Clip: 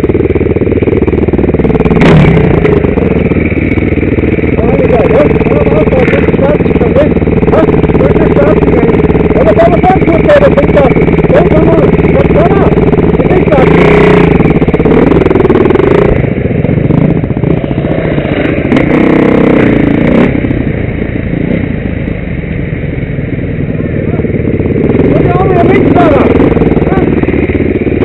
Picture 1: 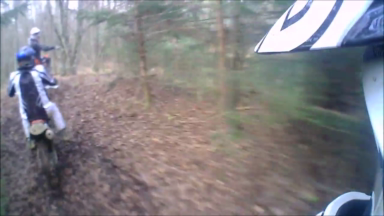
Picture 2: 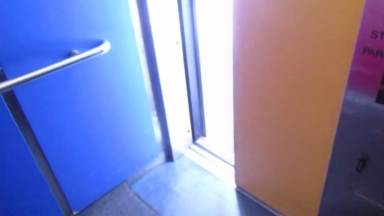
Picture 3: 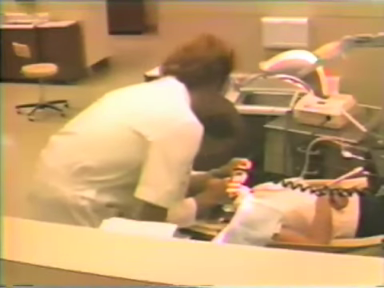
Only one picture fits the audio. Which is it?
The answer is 1